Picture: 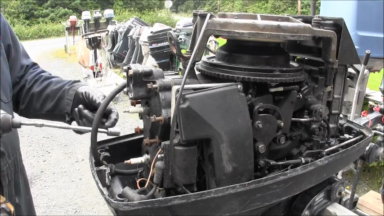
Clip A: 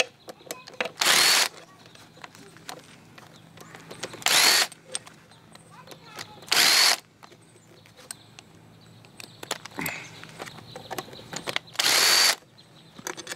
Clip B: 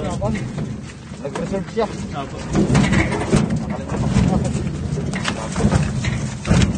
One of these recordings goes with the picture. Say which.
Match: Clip A